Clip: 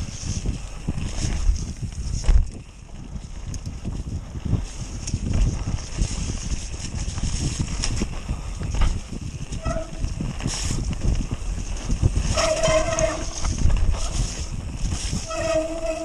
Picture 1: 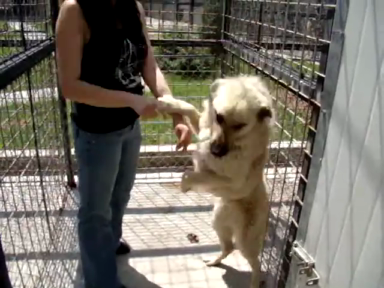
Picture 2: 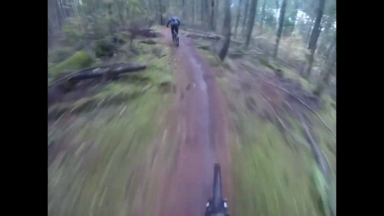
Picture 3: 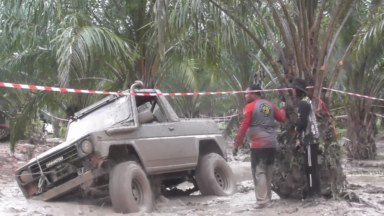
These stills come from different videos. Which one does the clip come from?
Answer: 2